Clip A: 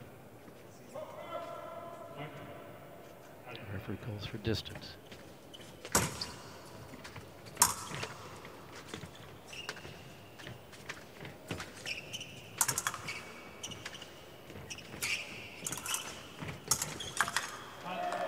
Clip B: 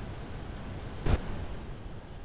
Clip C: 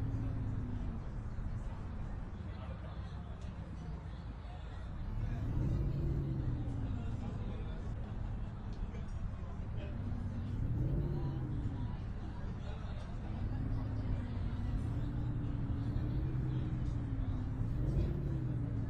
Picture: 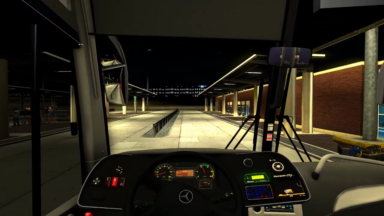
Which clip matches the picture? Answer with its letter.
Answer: C